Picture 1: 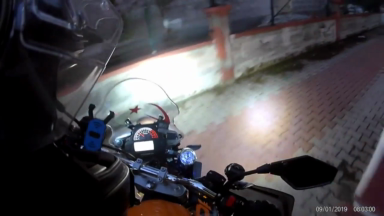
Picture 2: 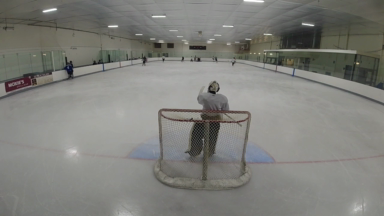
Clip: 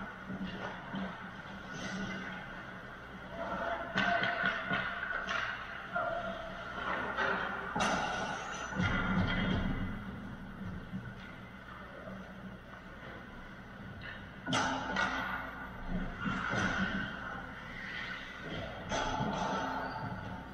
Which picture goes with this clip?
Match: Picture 2